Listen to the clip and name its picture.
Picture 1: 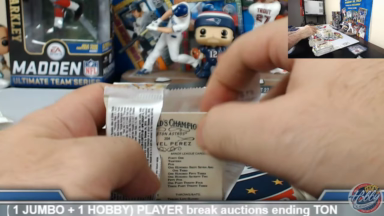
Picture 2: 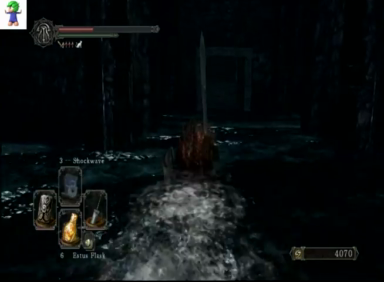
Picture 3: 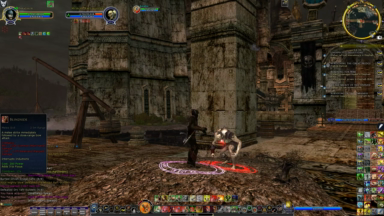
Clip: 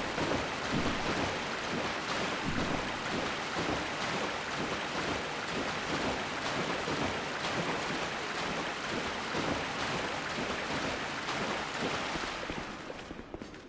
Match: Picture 2